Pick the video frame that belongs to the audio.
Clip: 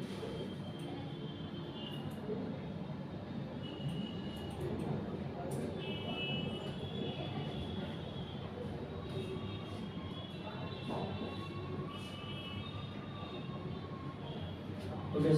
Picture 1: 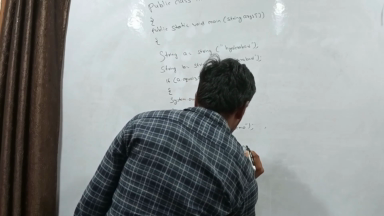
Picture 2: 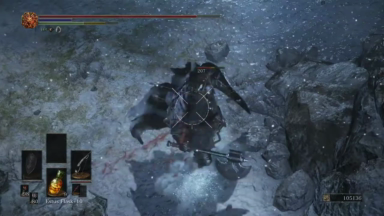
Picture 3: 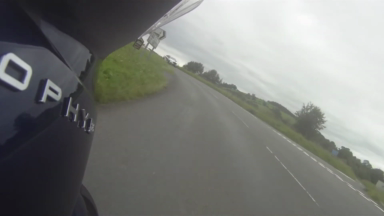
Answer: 1